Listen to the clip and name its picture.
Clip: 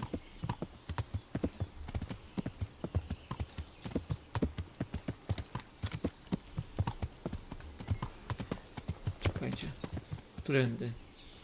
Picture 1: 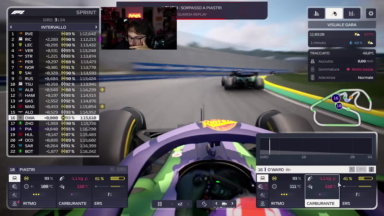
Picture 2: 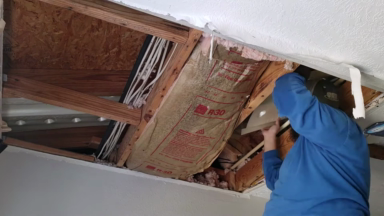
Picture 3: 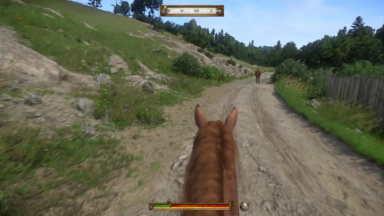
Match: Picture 3